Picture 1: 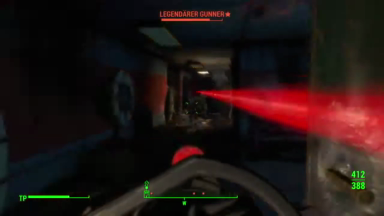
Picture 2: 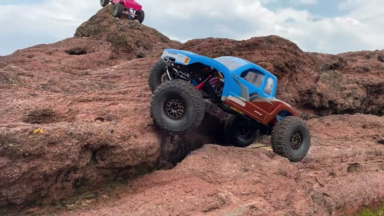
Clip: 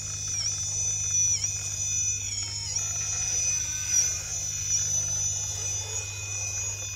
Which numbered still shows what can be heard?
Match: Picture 2